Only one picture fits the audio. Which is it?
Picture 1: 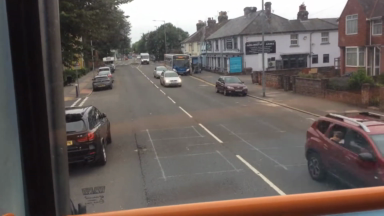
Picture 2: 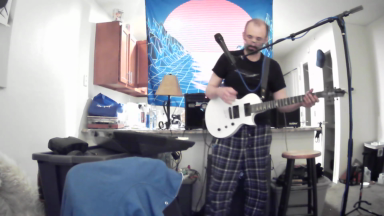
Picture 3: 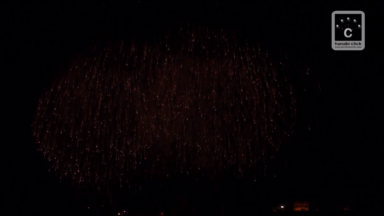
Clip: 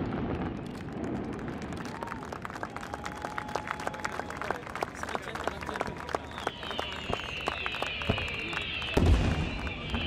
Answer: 3